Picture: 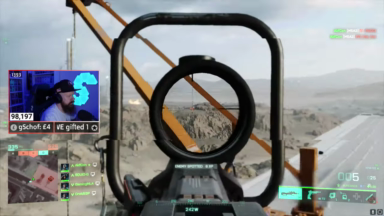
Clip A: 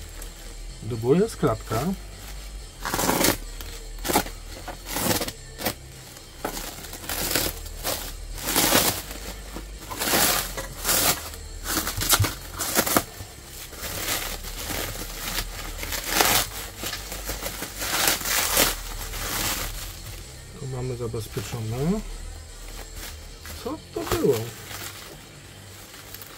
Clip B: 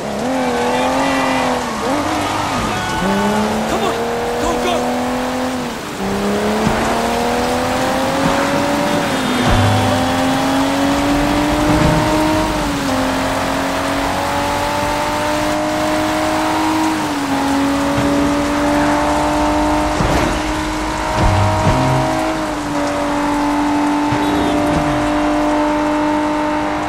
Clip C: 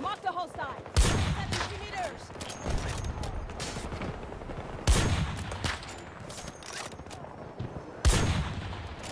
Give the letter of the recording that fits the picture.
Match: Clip C